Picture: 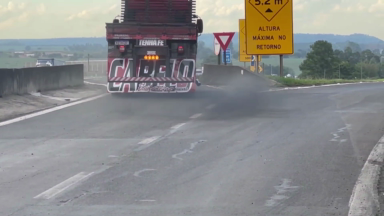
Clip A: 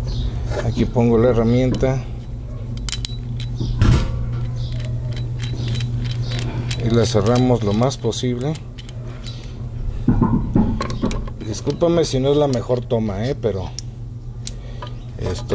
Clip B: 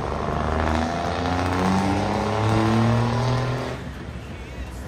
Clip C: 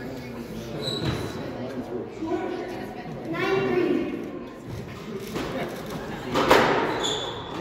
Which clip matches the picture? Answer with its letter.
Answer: B